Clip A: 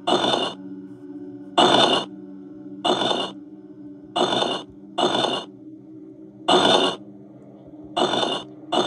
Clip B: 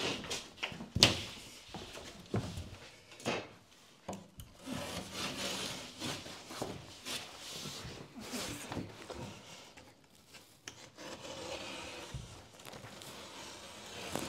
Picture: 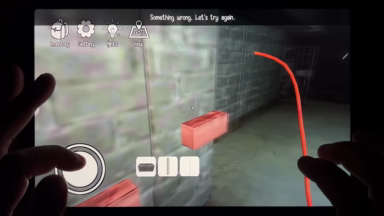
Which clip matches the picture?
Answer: A